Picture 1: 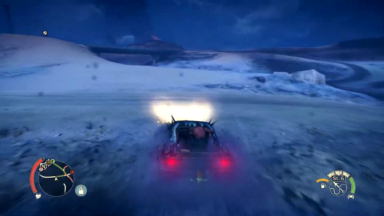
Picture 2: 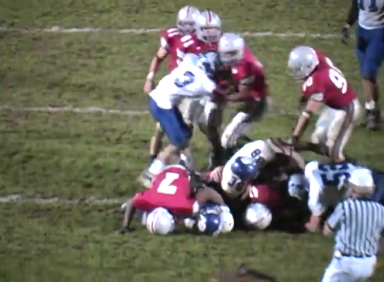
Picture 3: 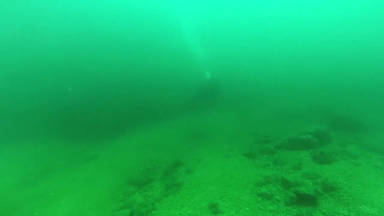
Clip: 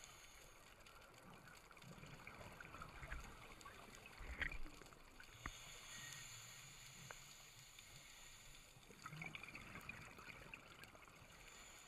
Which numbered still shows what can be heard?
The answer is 3